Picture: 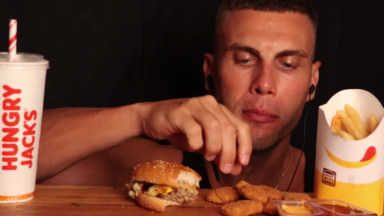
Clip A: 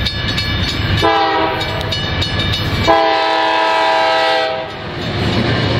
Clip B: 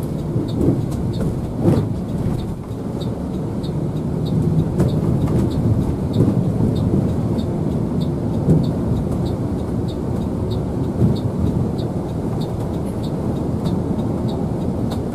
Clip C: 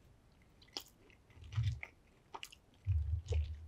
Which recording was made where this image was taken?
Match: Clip C